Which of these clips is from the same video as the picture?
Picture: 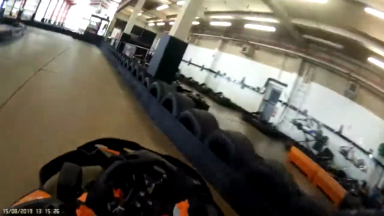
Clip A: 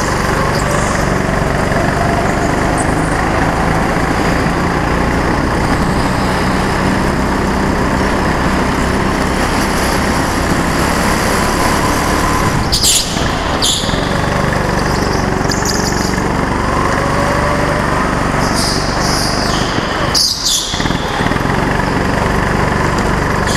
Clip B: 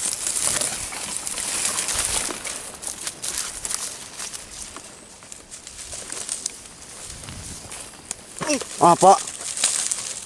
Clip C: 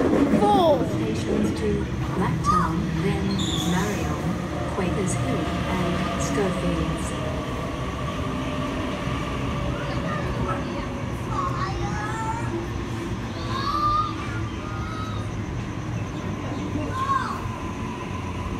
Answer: A